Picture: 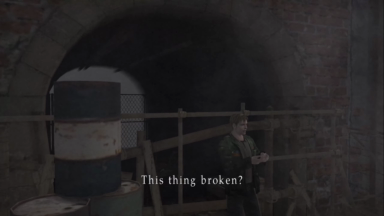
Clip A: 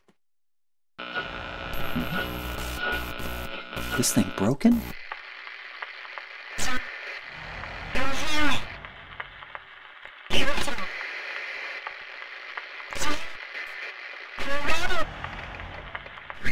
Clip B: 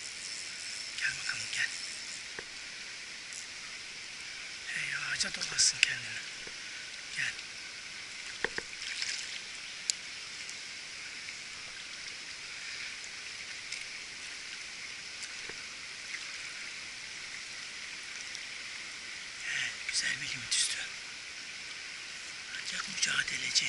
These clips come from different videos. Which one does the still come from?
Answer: A